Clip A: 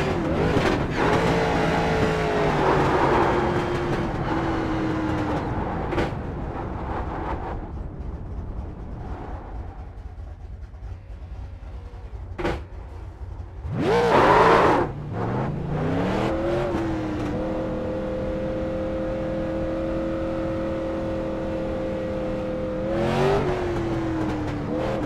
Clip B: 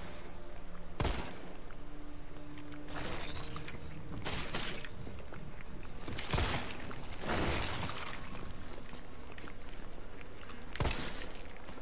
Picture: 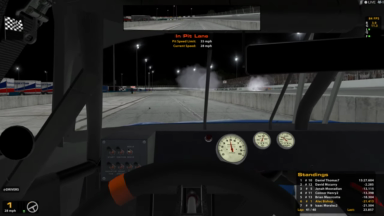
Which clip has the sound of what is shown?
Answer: A